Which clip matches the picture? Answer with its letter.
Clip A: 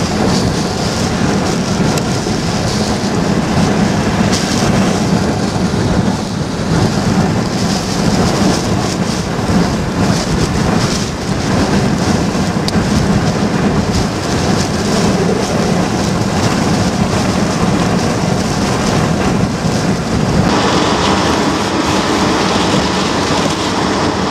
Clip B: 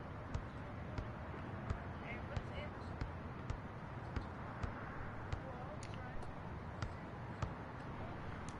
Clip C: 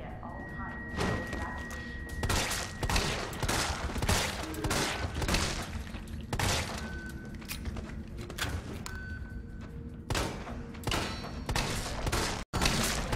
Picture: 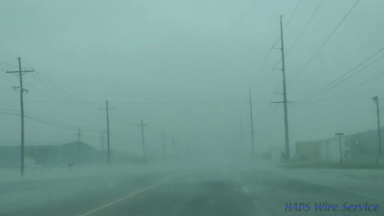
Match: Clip A